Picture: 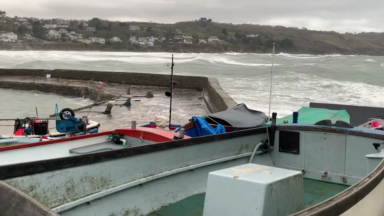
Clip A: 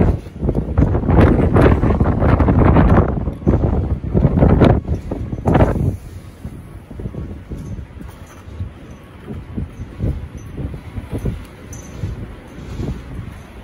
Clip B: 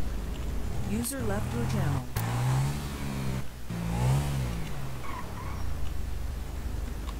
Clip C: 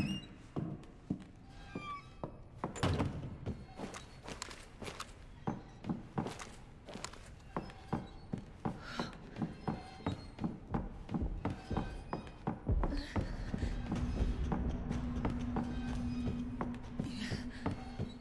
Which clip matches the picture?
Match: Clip A